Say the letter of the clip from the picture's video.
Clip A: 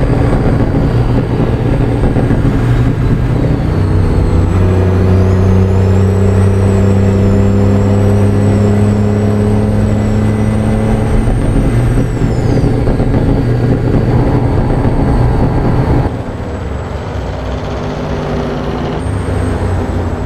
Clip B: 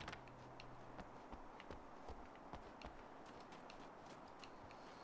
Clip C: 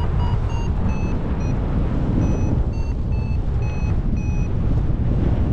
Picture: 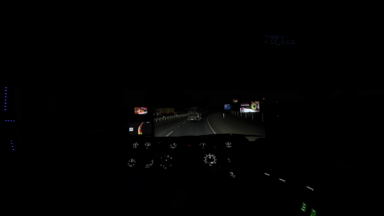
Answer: A